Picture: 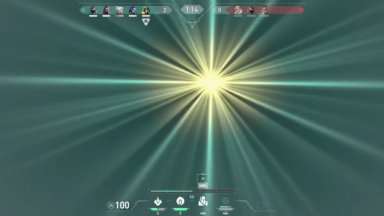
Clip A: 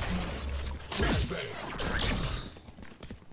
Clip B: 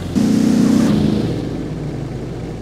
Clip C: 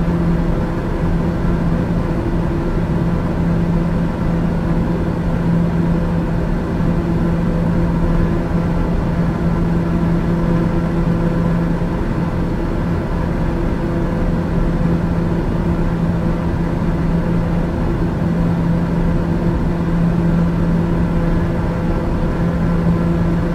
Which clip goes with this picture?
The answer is A